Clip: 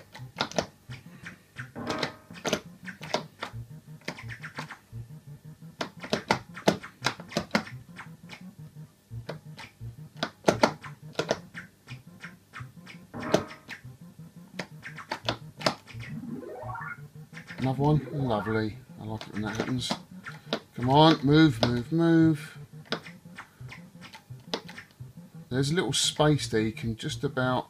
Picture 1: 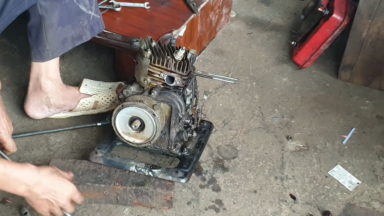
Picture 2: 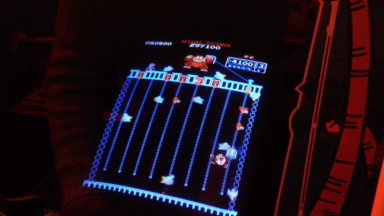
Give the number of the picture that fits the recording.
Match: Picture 2